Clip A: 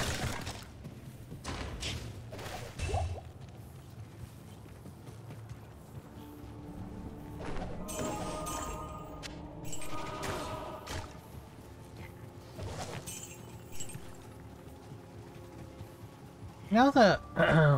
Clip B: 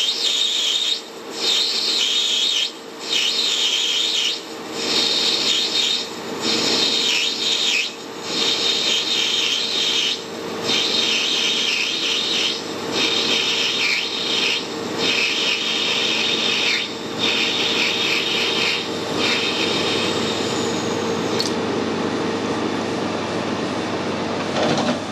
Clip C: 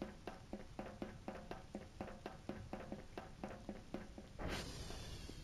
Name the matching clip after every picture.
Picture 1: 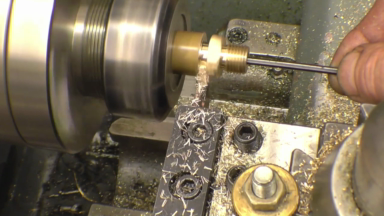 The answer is B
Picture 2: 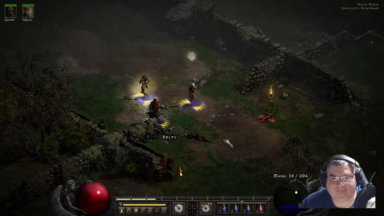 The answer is A